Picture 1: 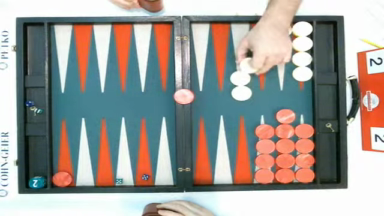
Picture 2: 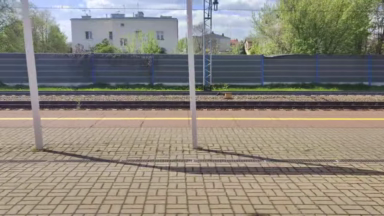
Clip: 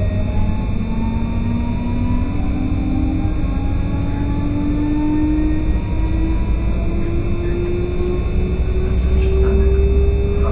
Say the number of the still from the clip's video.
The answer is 2